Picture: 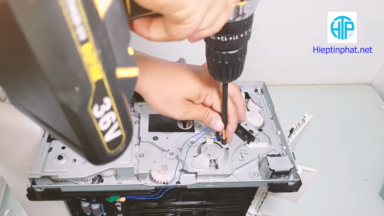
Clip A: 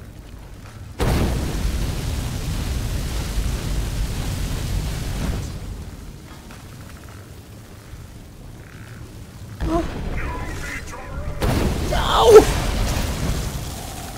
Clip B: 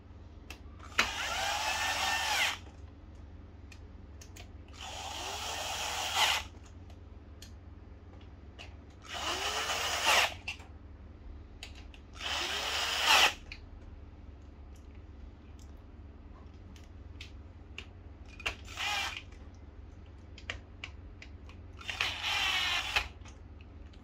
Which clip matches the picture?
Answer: B